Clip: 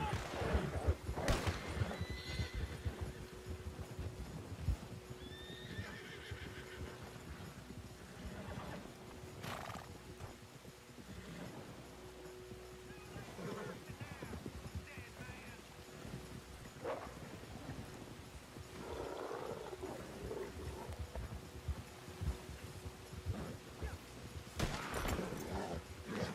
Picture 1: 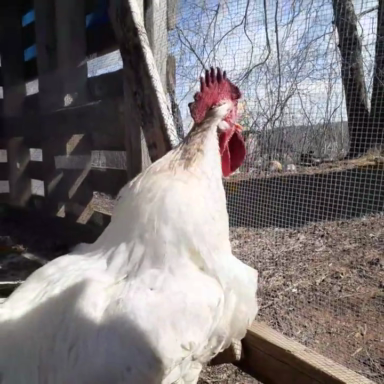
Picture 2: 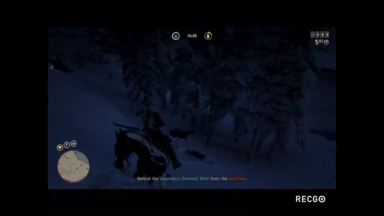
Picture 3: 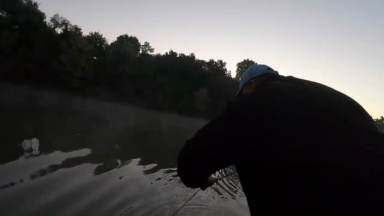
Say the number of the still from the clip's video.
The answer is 2